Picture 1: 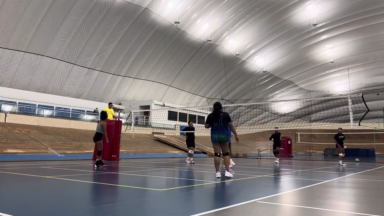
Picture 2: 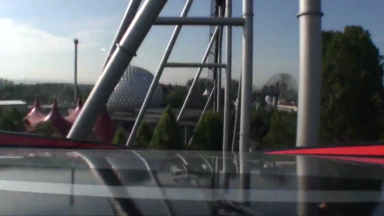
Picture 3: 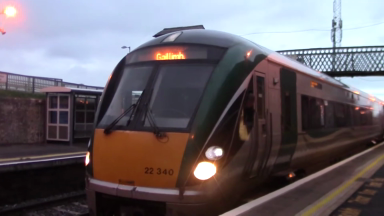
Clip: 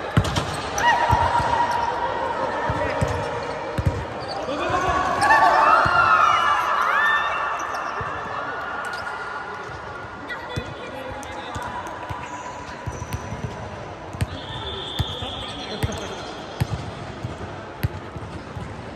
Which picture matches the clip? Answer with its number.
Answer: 1